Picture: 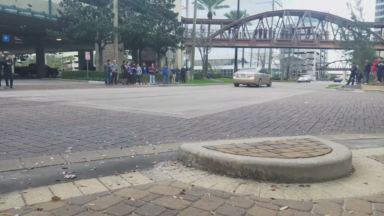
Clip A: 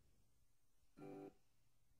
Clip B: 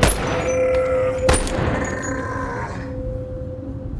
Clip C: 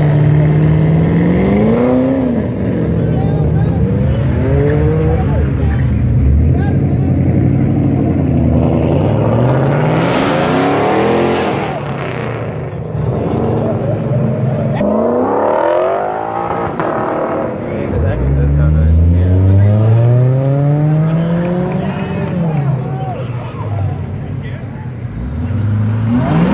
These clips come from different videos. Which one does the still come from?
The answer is C